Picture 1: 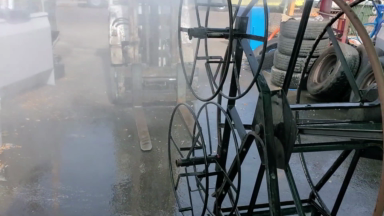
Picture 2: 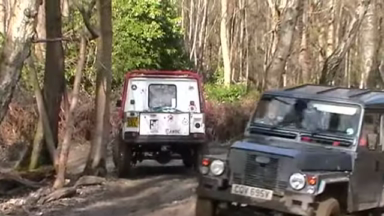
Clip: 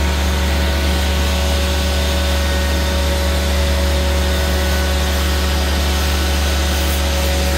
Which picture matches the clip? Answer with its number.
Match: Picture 1